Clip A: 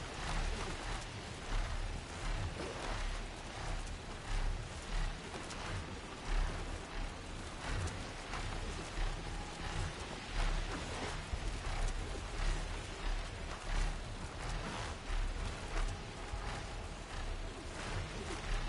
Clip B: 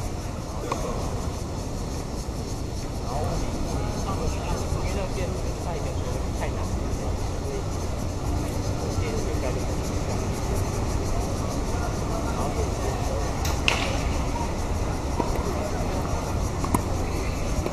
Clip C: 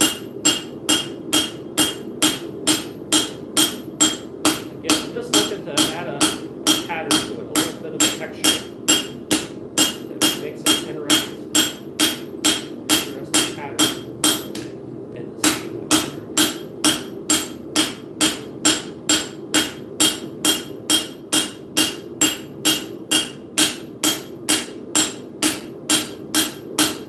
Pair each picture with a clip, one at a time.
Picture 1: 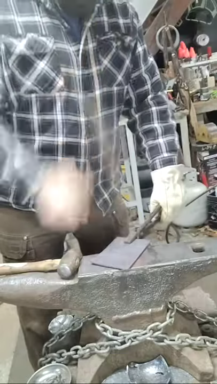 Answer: C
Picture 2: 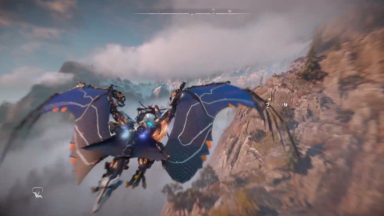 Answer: A